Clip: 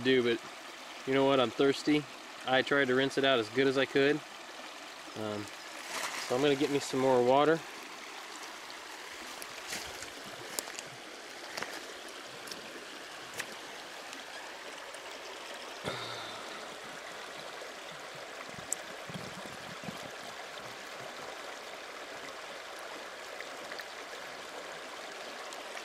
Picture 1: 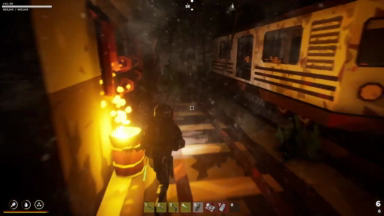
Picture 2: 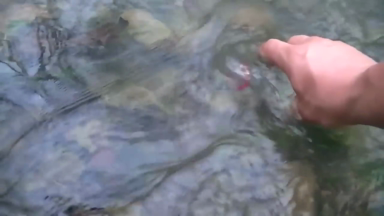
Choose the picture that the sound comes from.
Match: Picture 2